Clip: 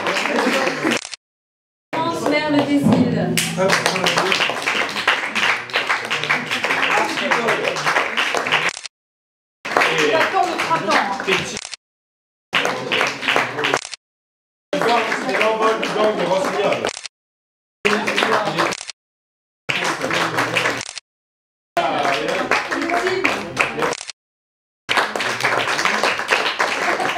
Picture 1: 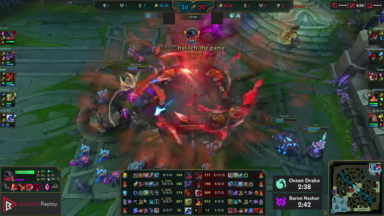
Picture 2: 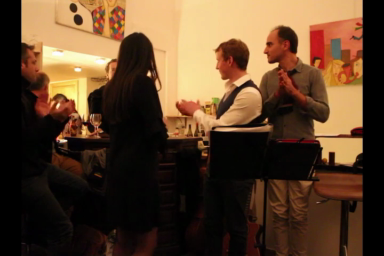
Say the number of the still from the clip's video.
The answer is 2